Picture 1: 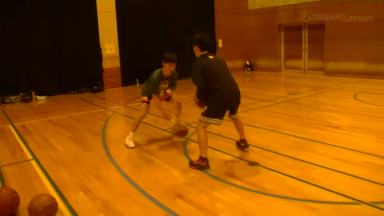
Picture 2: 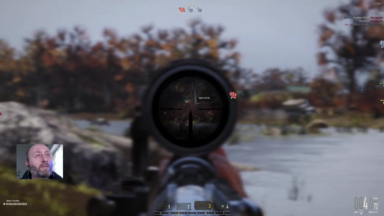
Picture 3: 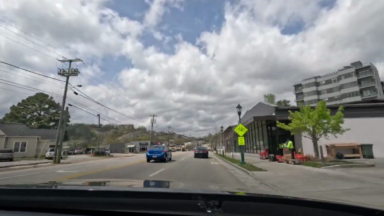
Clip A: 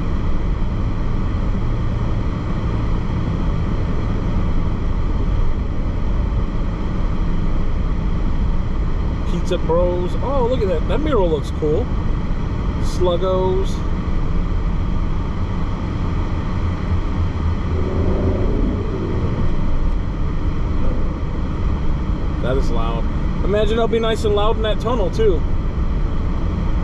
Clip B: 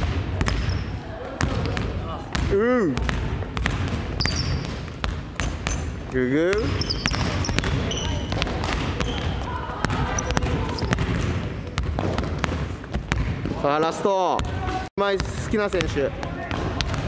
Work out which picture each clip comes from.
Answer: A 3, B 1